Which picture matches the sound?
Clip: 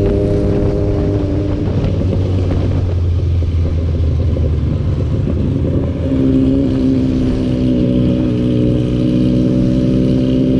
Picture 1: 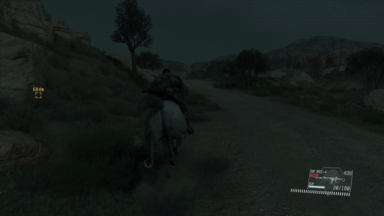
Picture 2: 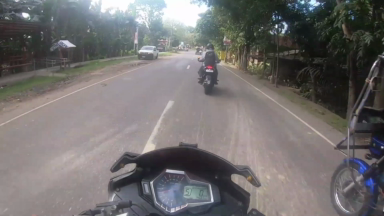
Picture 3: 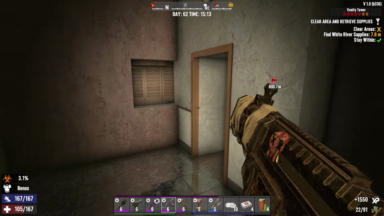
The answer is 2